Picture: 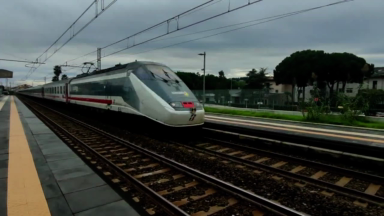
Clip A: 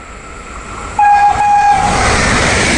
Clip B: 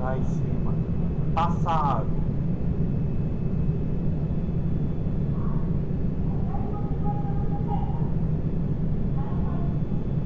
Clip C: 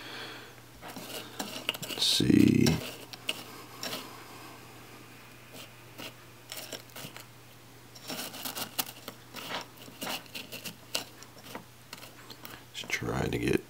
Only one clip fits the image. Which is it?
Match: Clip A